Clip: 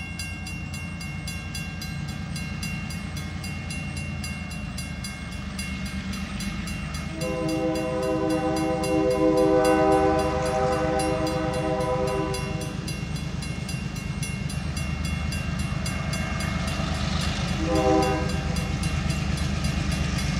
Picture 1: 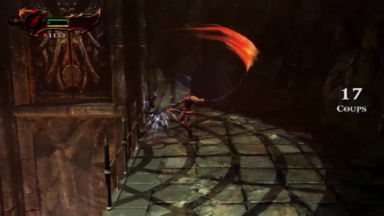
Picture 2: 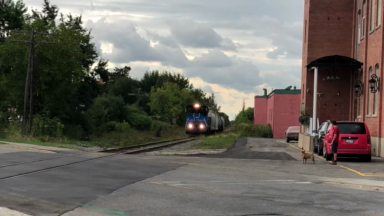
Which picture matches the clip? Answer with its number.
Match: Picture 2